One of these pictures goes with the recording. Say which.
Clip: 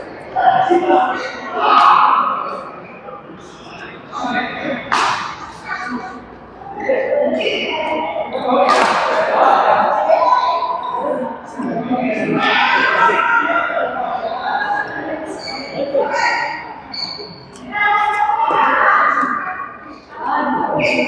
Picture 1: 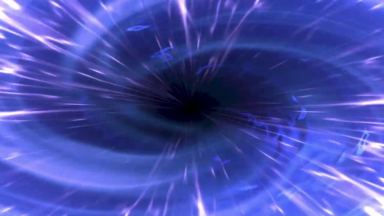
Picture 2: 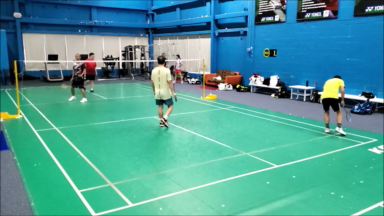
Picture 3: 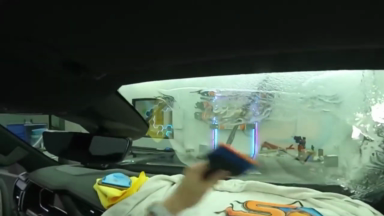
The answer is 2